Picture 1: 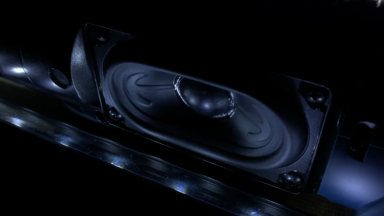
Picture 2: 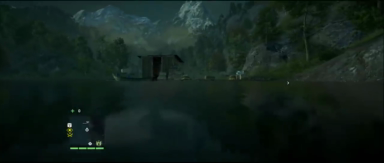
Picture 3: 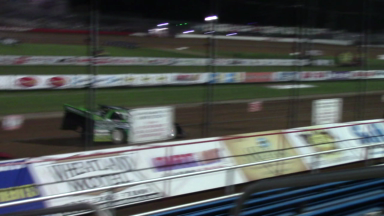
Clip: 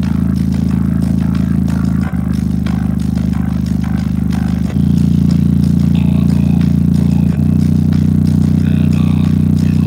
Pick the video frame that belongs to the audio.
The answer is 1